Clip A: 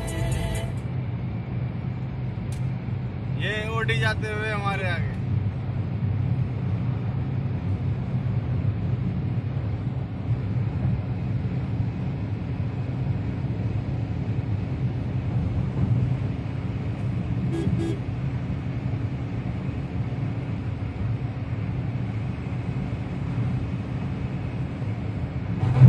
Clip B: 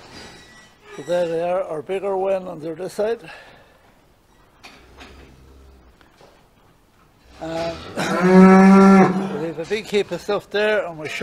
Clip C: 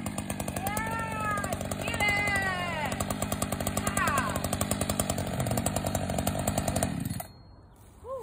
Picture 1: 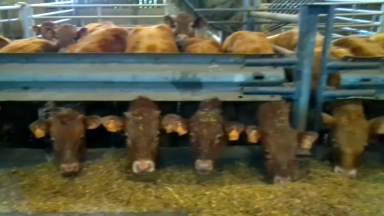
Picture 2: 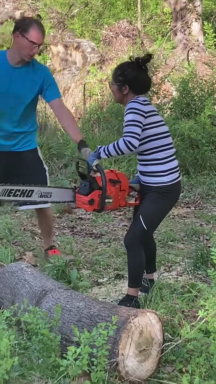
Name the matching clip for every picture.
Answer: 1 B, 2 C